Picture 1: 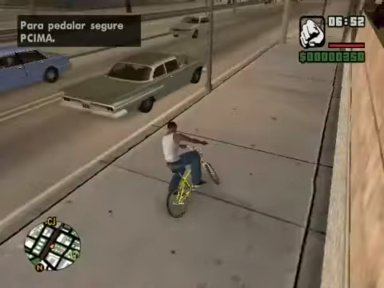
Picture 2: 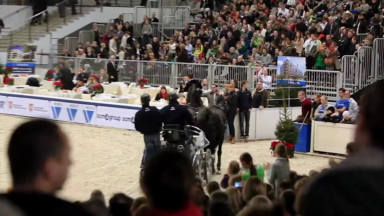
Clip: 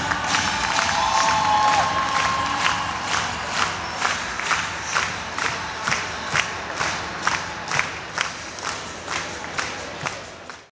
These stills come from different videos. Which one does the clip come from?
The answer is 2